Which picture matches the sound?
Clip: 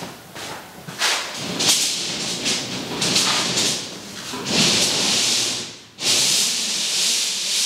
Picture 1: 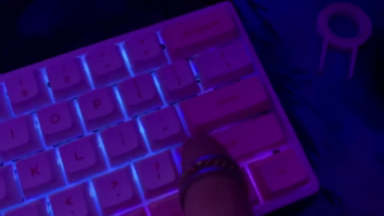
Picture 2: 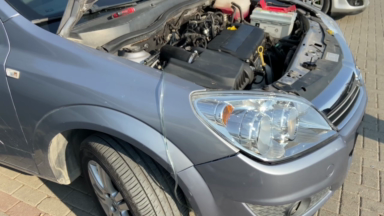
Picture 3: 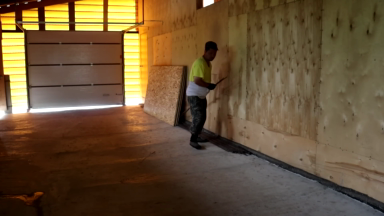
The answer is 3